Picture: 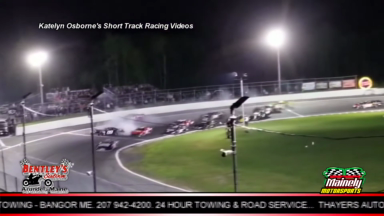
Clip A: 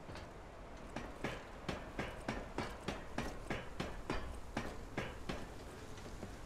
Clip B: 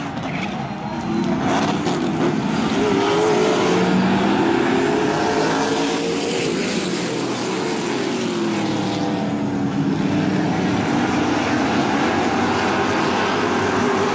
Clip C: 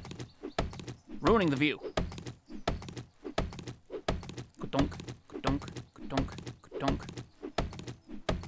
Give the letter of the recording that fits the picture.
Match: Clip B